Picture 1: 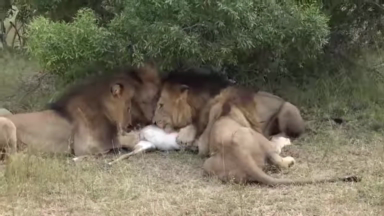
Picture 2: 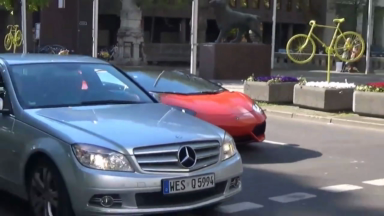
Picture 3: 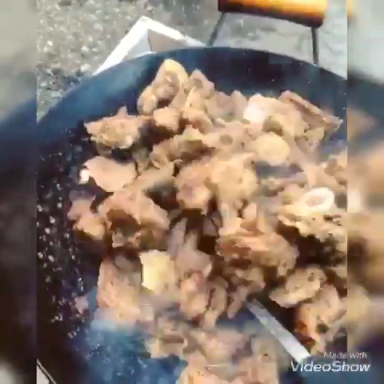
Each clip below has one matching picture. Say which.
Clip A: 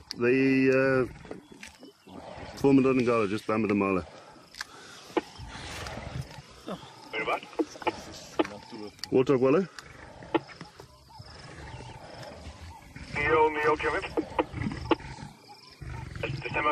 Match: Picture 1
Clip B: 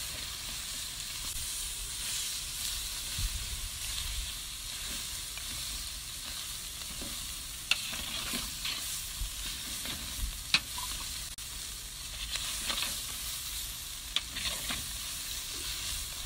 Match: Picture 3